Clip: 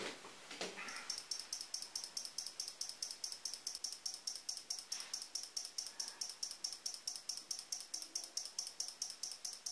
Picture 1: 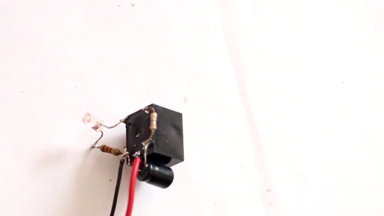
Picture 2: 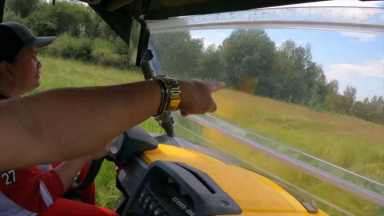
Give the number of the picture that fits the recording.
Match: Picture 1